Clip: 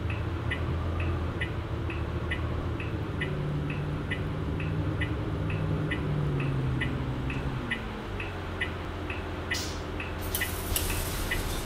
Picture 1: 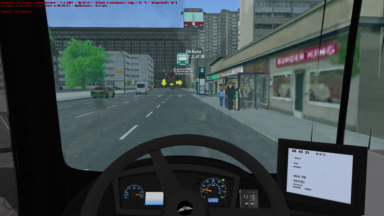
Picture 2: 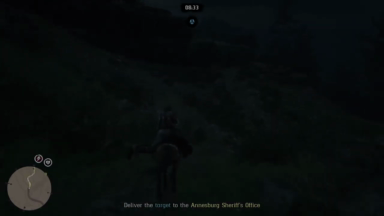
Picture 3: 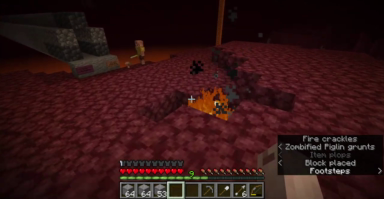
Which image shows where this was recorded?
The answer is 1